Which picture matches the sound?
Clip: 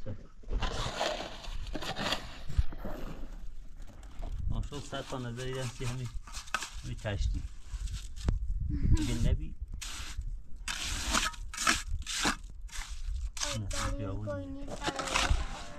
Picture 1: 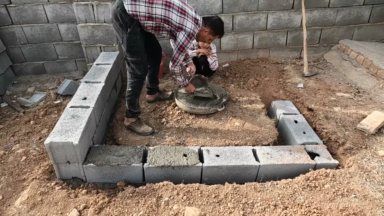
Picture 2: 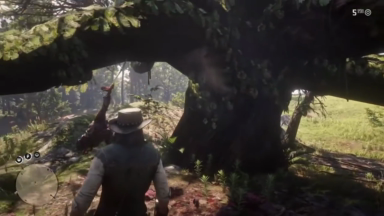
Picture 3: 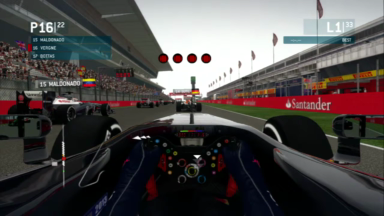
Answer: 1